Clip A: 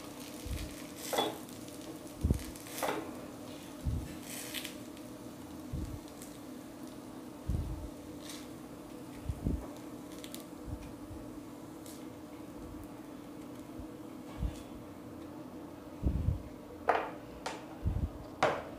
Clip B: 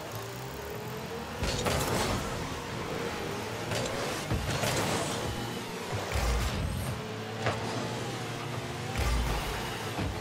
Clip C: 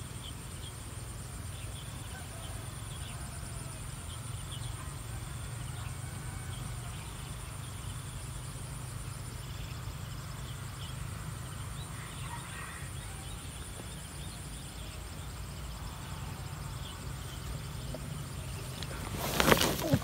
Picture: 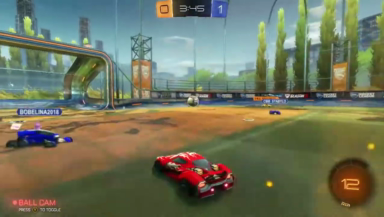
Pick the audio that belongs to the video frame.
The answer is B